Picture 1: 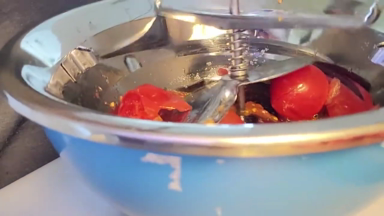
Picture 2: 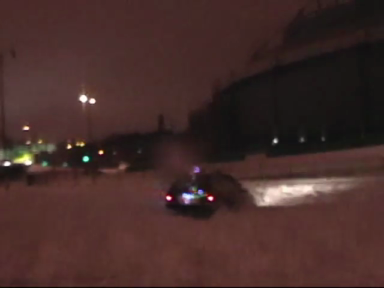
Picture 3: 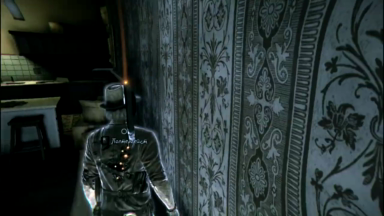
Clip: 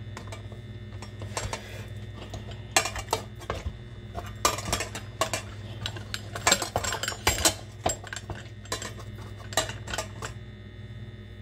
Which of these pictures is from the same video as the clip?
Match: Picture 1